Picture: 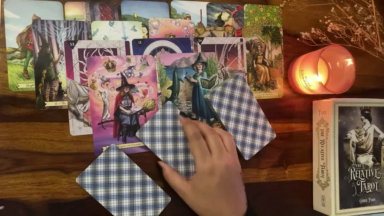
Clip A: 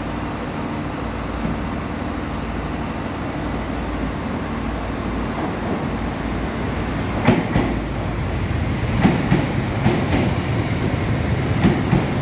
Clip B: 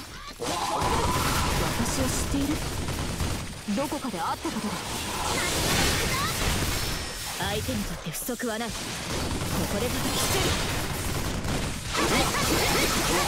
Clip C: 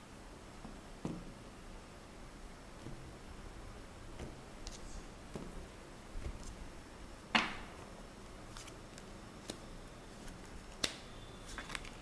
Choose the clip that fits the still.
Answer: C